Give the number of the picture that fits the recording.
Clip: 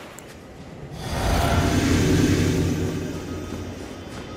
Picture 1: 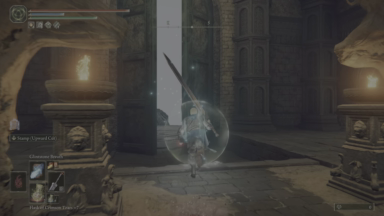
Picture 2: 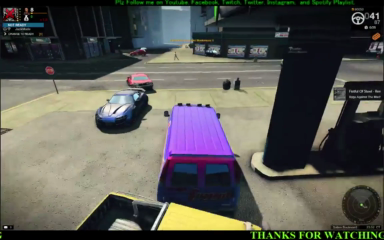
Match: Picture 1